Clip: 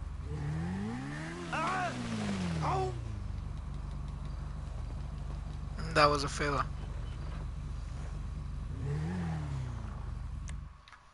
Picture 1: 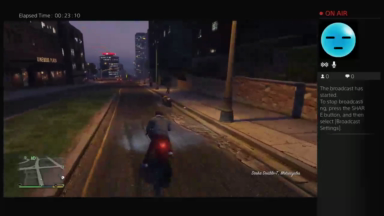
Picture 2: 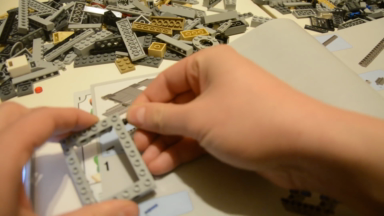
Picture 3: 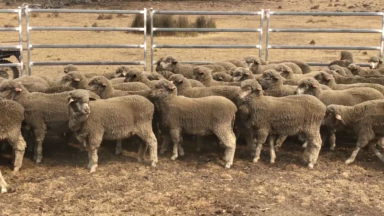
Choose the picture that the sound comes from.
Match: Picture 1